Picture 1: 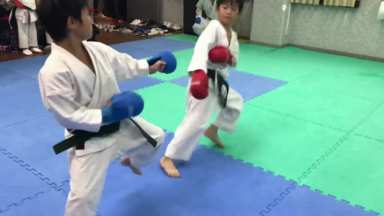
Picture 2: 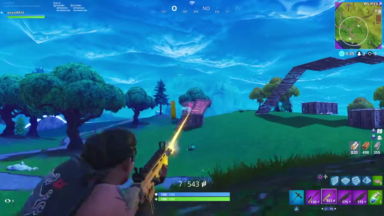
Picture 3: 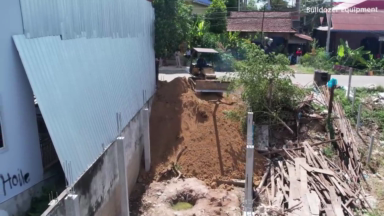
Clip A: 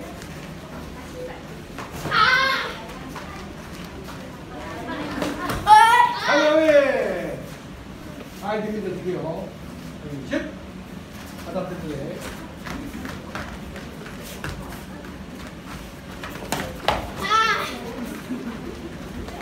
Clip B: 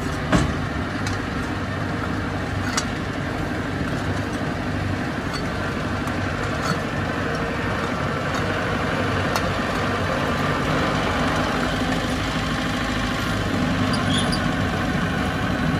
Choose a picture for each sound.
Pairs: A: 1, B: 3